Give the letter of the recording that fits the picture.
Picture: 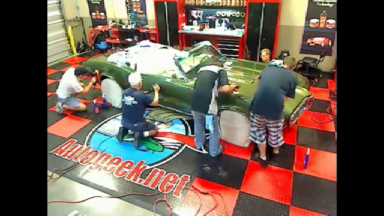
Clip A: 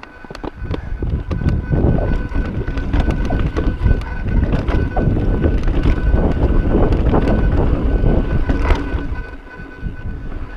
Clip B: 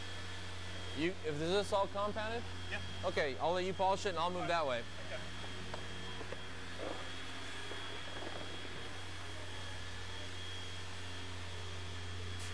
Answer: B